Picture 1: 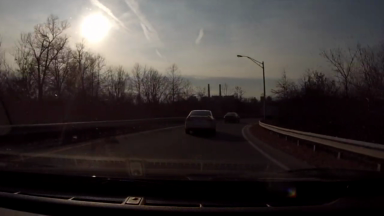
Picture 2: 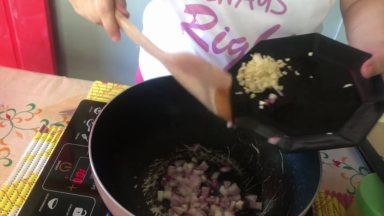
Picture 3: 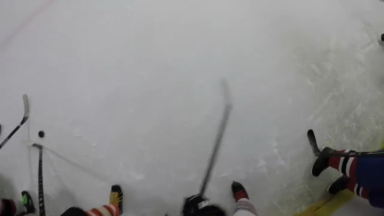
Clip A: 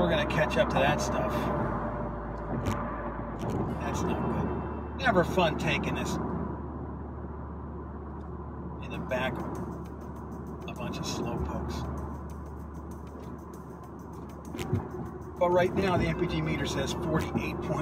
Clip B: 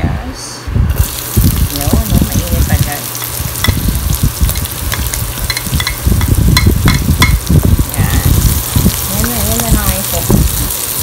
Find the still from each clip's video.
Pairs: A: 1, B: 2